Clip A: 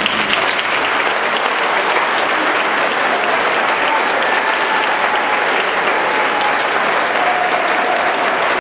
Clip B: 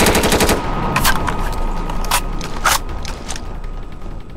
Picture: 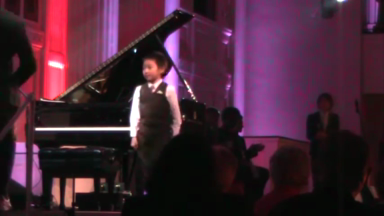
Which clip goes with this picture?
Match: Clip A